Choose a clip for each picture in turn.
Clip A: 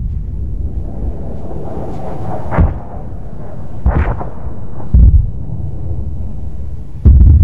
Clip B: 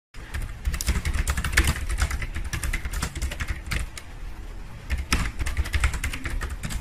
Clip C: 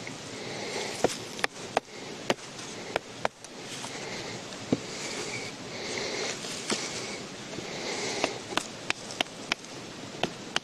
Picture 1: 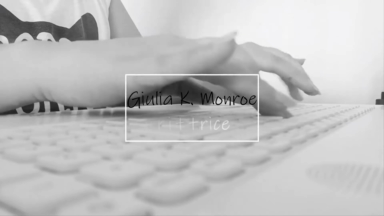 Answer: B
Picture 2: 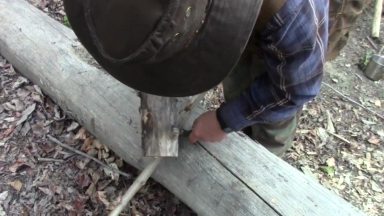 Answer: C